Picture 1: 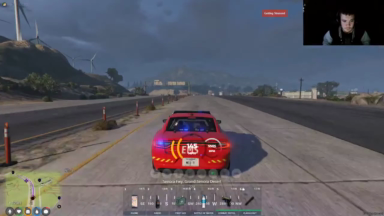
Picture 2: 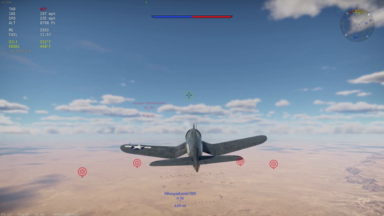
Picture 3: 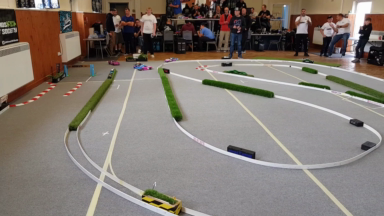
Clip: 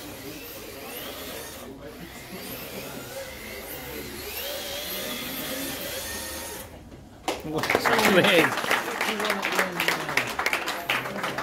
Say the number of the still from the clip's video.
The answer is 3